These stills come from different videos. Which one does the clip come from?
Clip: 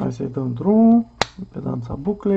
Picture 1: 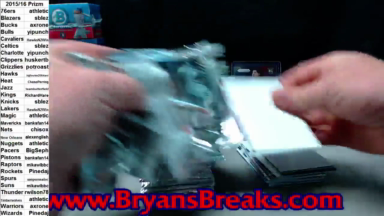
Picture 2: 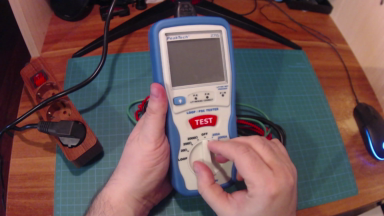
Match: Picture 2